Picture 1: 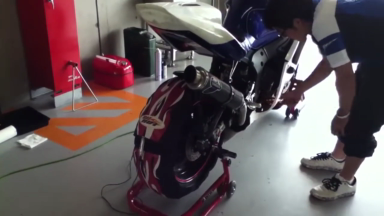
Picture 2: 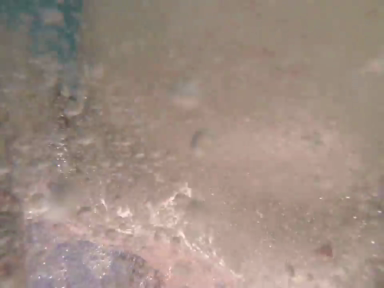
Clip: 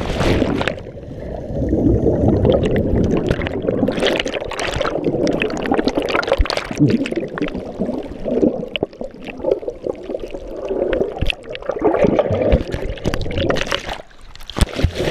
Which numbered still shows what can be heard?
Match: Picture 2